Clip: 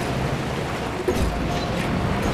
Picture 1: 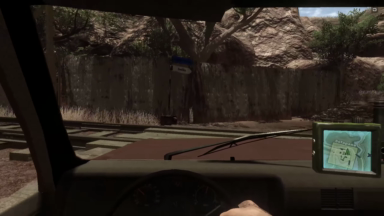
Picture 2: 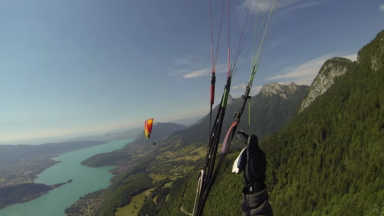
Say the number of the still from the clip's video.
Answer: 1